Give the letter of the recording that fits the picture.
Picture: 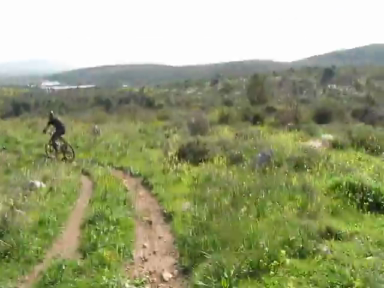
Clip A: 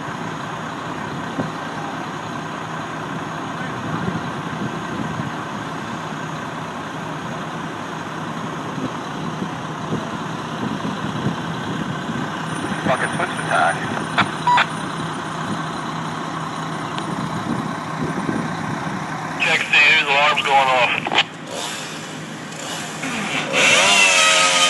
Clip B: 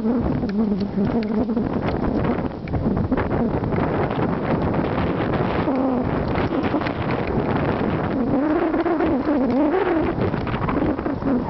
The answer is B